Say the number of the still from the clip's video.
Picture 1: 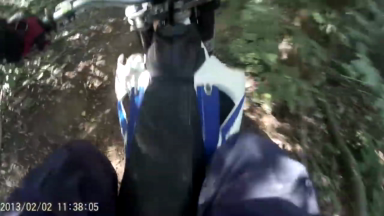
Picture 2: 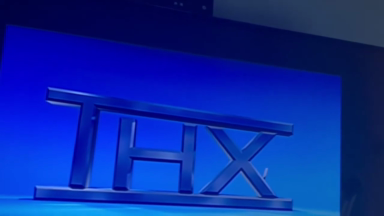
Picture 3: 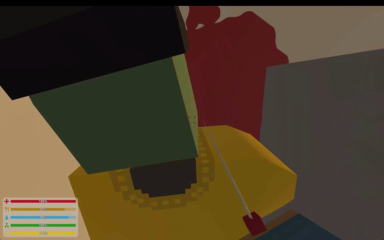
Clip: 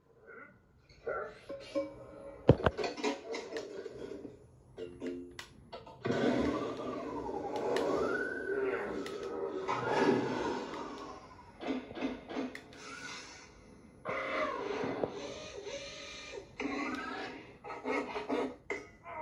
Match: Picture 2